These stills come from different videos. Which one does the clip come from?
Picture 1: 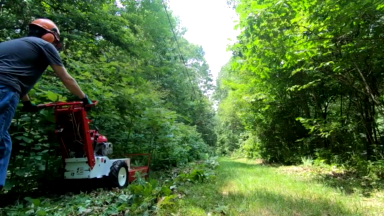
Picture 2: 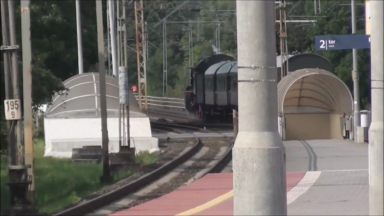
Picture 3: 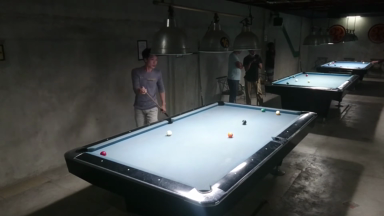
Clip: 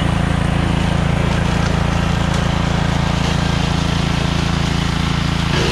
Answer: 1